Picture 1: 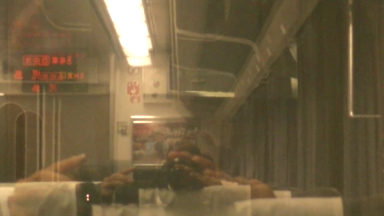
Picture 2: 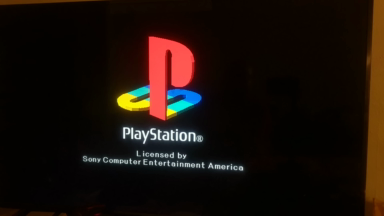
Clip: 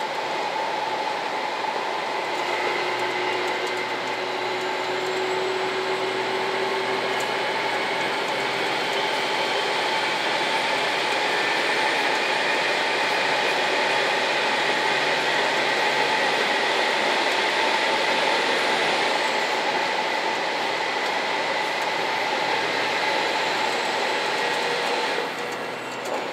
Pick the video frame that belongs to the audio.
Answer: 1